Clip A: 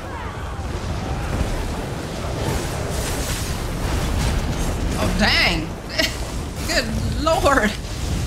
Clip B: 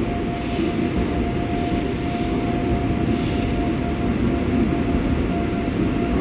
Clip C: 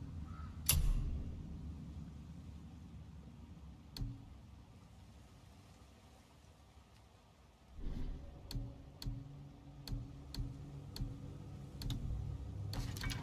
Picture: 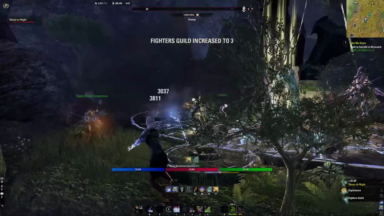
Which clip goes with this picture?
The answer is A